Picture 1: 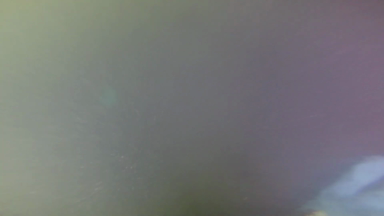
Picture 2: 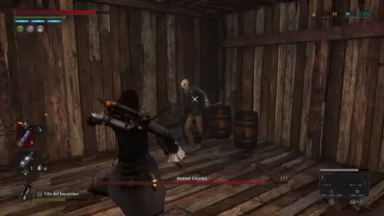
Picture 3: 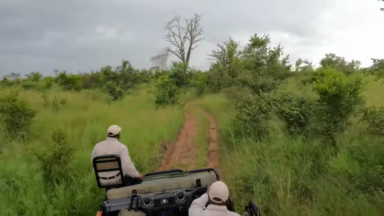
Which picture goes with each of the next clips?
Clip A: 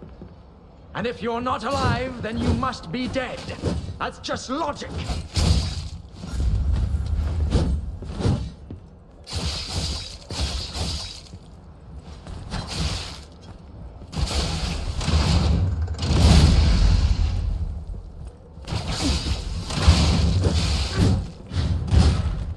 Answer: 2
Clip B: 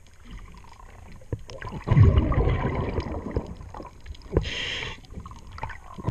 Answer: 1